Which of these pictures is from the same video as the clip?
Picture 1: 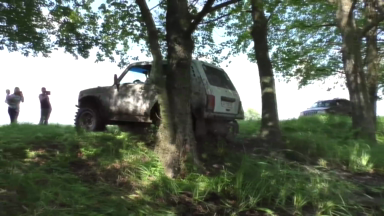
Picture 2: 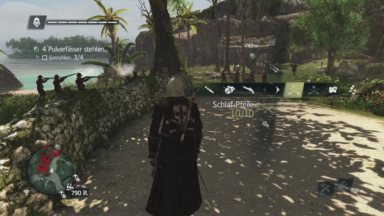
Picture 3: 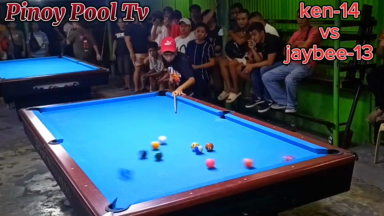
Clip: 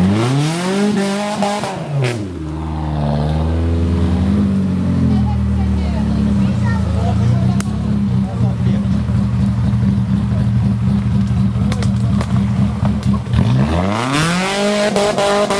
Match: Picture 1